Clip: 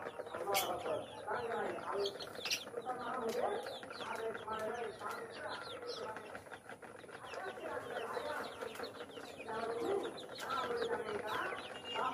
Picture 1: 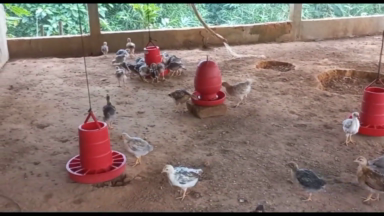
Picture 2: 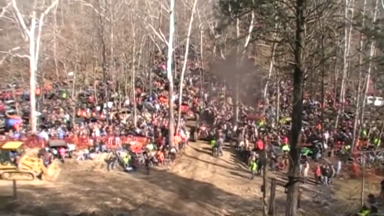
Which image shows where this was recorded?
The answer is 1